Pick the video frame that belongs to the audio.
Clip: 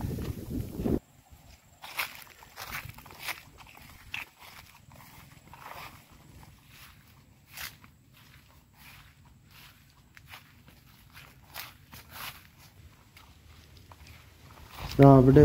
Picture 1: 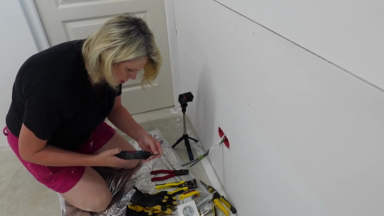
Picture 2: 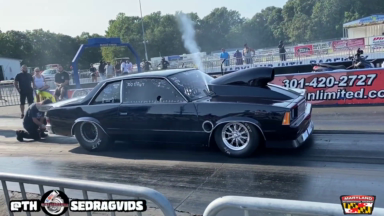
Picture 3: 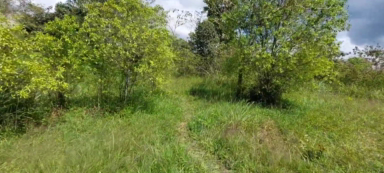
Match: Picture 3